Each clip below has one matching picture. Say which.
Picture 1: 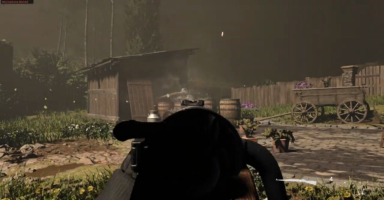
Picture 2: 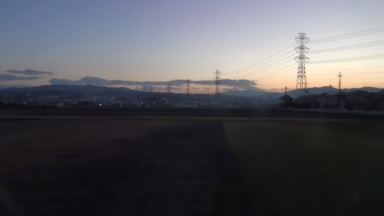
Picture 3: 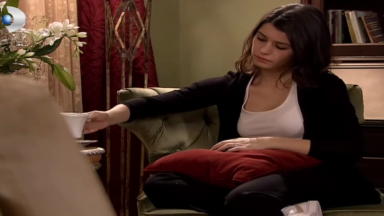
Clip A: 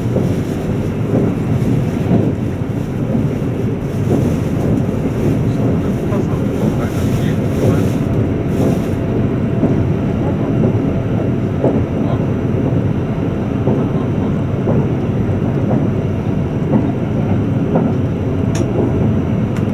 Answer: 2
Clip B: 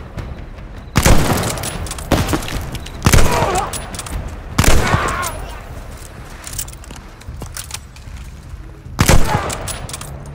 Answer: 1